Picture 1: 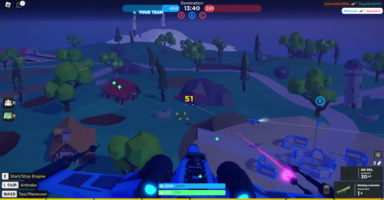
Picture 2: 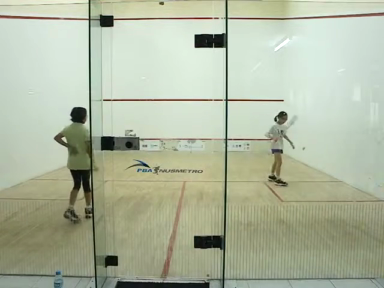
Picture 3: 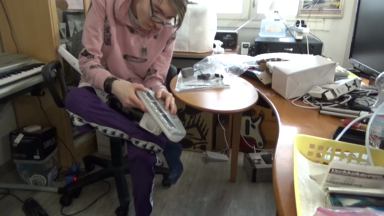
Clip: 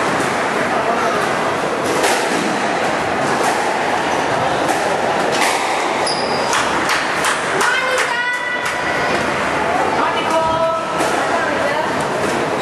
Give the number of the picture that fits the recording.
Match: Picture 2